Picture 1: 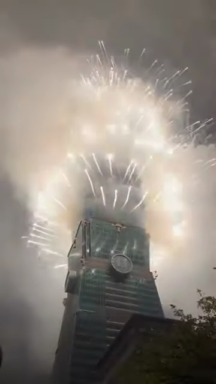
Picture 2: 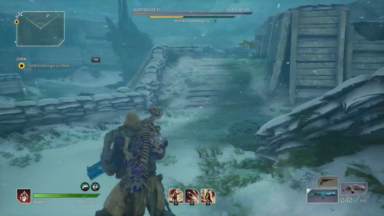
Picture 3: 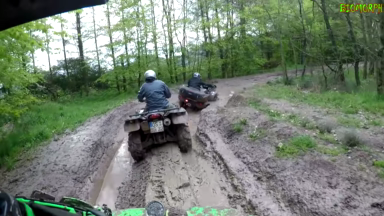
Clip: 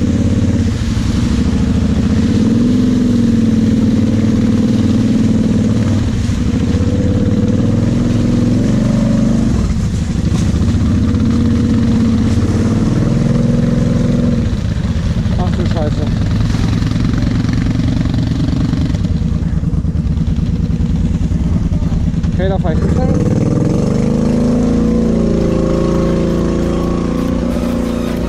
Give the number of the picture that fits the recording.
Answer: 3